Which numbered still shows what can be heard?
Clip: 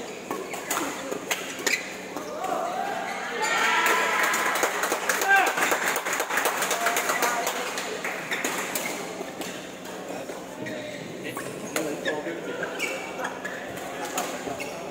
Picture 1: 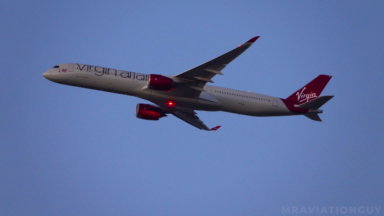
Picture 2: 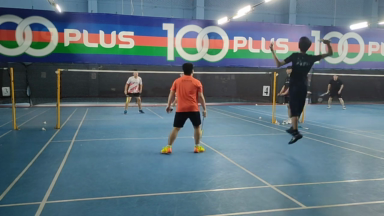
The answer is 2